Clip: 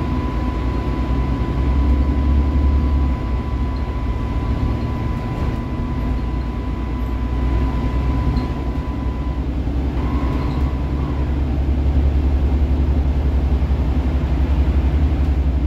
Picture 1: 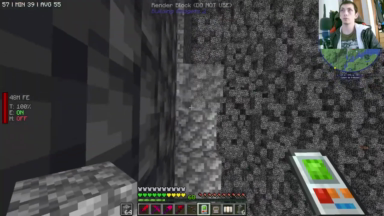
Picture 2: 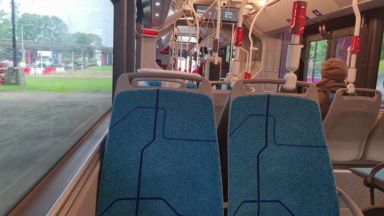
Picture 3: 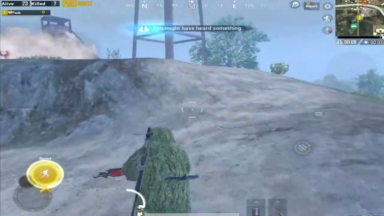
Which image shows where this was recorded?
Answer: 2